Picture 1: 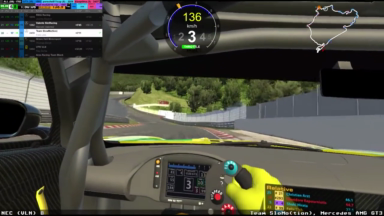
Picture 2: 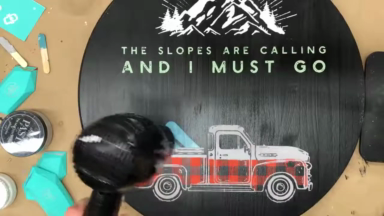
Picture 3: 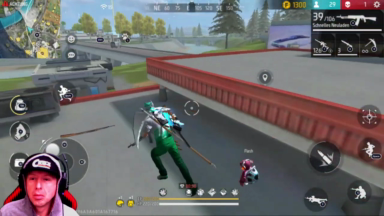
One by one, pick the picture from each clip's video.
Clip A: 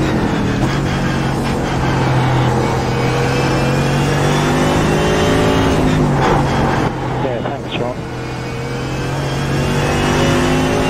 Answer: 1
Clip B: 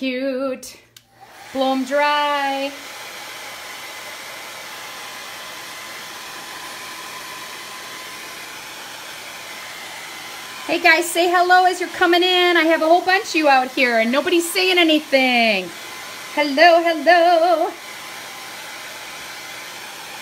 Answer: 2